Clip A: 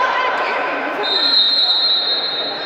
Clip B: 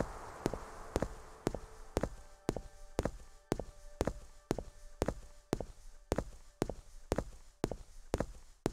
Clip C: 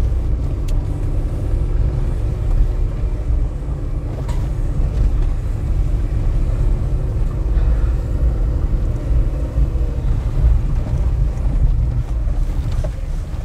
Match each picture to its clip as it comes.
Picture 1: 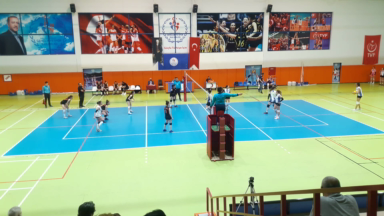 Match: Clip A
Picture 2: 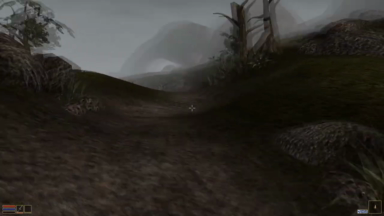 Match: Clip B